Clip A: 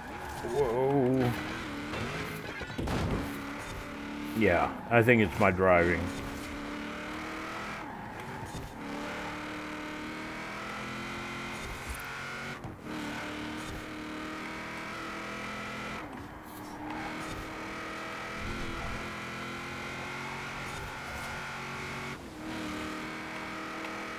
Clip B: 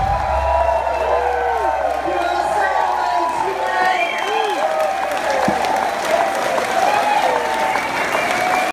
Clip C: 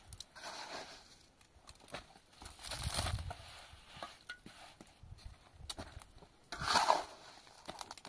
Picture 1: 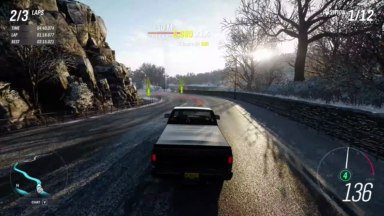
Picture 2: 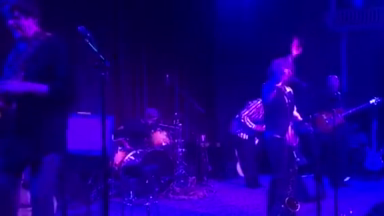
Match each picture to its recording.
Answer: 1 A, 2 B